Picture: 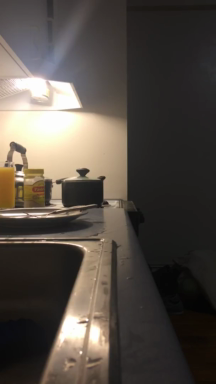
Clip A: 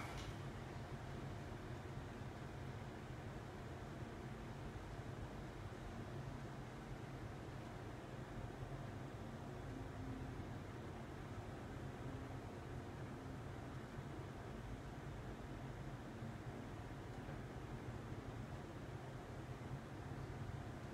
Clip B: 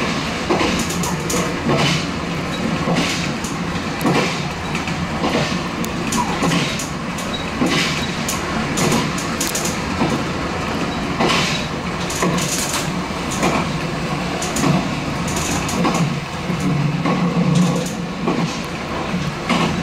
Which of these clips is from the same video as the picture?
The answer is A